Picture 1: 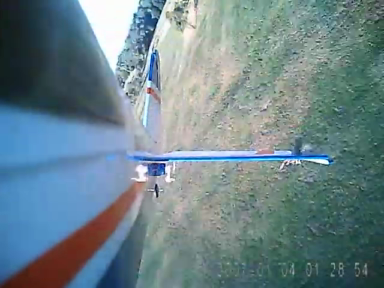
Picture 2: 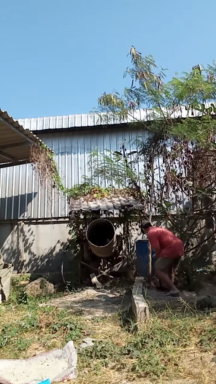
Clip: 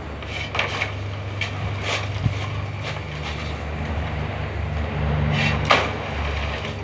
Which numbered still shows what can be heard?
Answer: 2